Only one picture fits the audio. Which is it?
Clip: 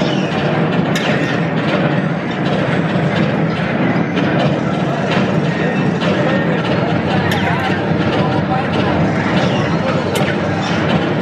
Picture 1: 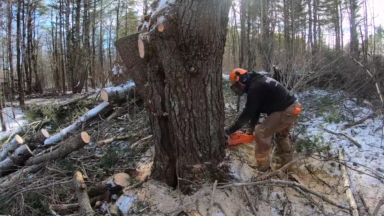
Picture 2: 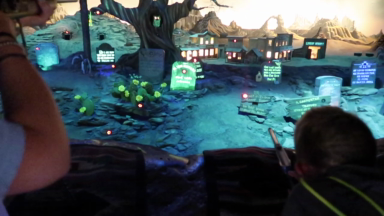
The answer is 2